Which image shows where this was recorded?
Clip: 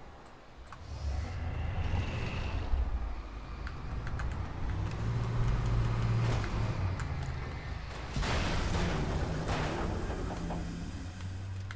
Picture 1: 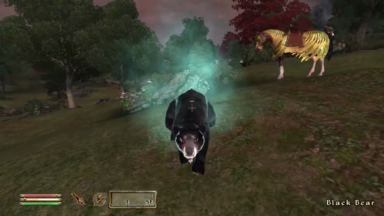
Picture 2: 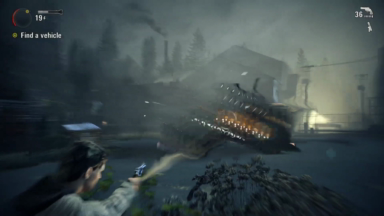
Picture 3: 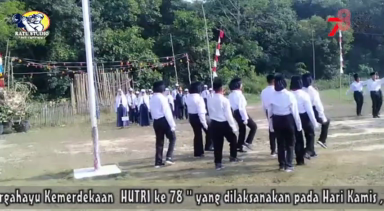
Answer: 2